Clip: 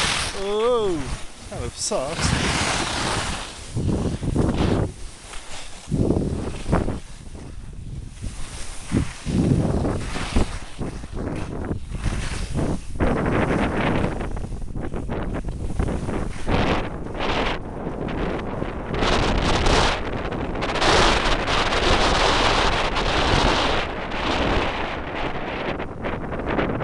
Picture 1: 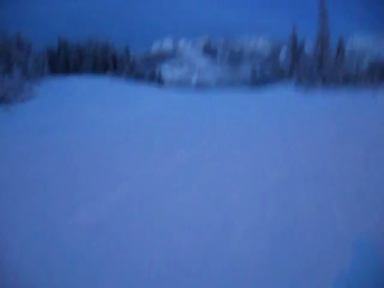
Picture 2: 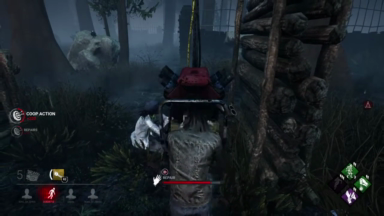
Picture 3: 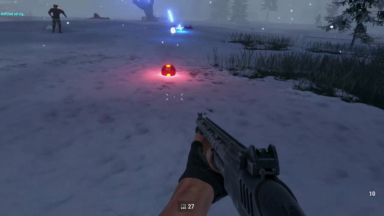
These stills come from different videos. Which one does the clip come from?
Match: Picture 1